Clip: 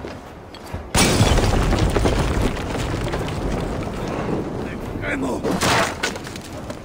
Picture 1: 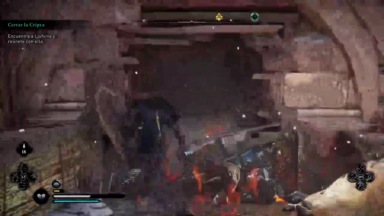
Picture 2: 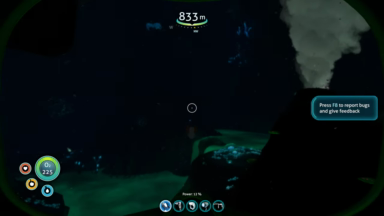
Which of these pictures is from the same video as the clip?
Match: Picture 1